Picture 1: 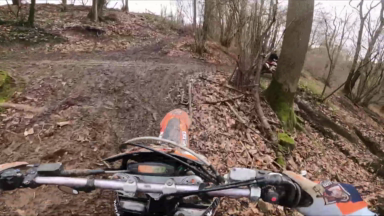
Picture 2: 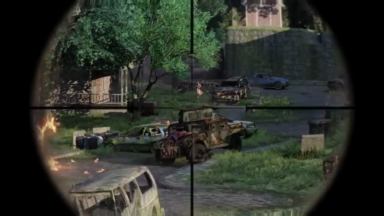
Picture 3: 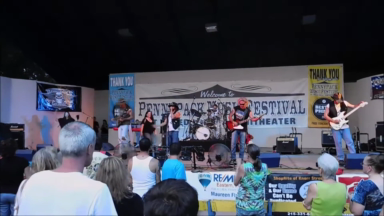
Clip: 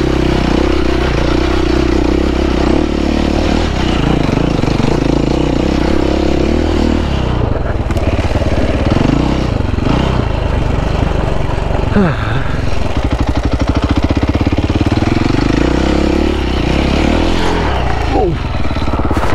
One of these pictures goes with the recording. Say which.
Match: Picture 1